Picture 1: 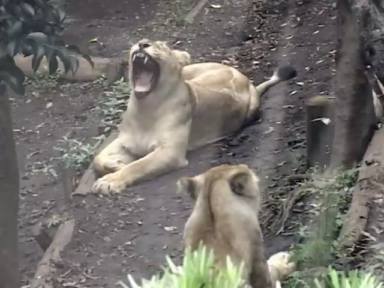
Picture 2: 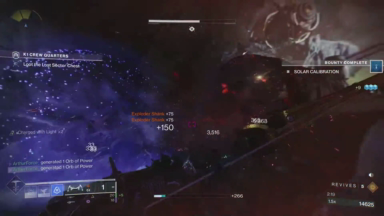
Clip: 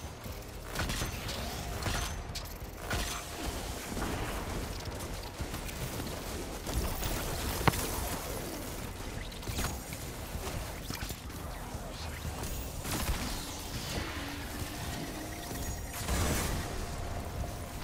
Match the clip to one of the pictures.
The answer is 2